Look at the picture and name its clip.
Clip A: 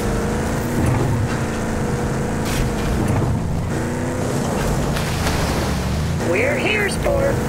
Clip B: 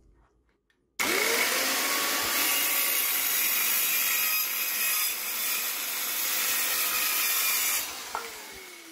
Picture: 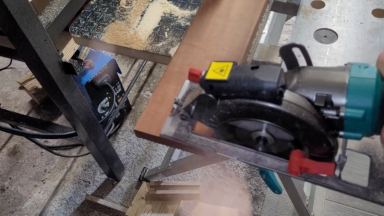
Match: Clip B